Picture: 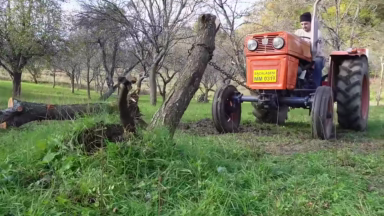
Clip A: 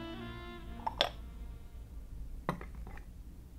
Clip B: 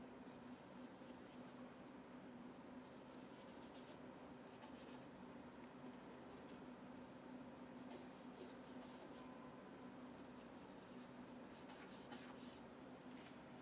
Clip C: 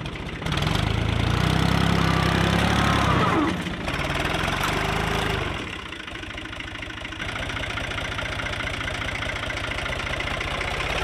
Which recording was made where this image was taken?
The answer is C